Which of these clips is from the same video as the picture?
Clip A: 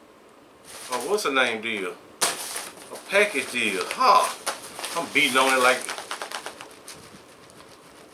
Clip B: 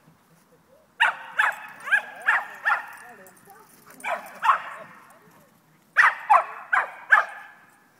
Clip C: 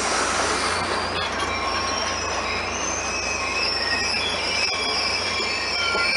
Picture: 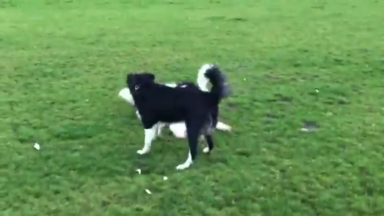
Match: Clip B